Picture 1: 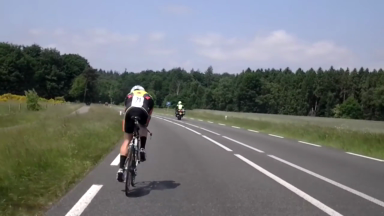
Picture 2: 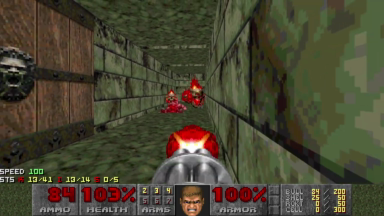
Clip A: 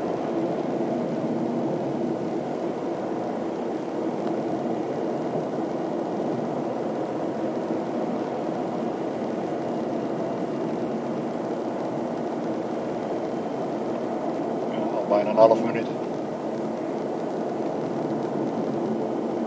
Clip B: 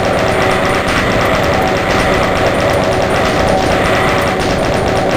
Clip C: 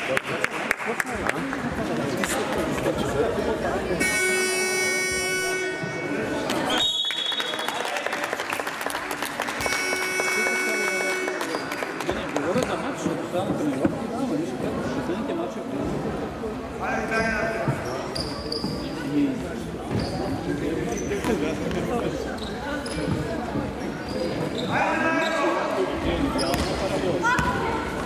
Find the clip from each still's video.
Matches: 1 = A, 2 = B